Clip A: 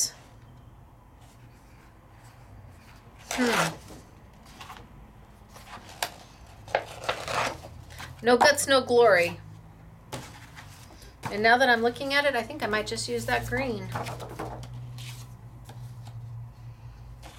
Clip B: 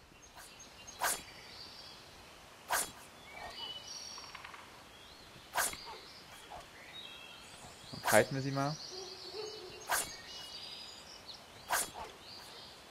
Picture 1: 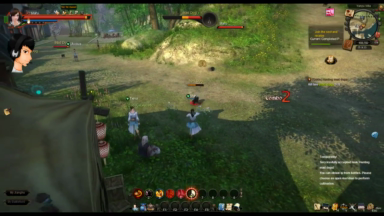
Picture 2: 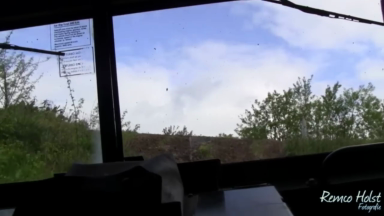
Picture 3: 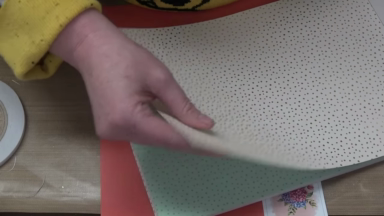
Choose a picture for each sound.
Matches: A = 3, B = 1